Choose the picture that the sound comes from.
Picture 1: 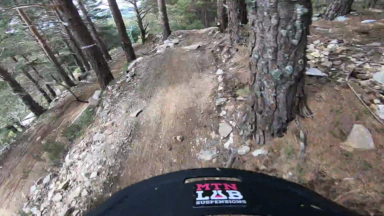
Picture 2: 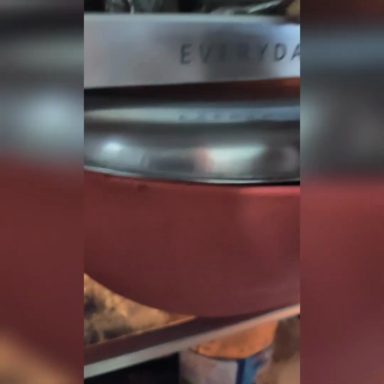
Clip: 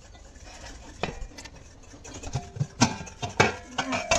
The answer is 2